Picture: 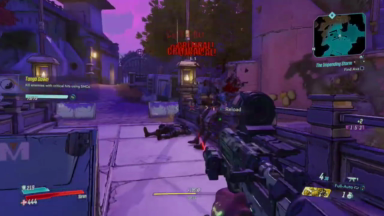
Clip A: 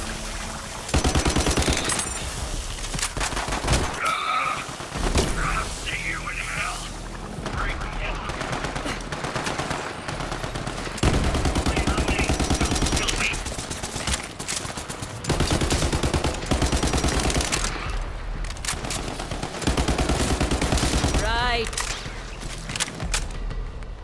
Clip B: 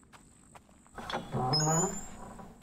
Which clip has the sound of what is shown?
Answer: A